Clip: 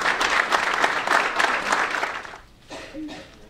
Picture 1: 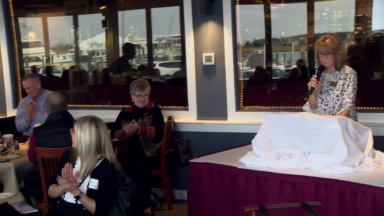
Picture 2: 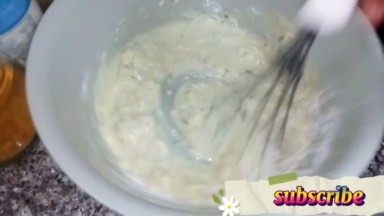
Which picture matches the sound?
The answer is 1